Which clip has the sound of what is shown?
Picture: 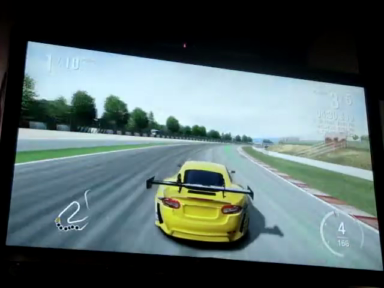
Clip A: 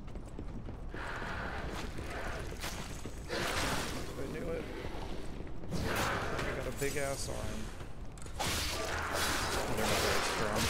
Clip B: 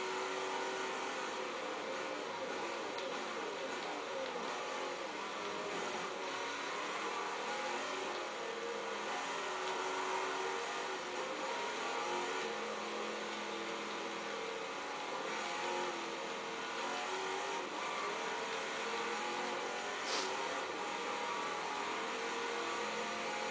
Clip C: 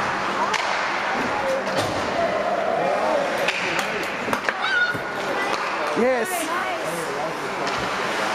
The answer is B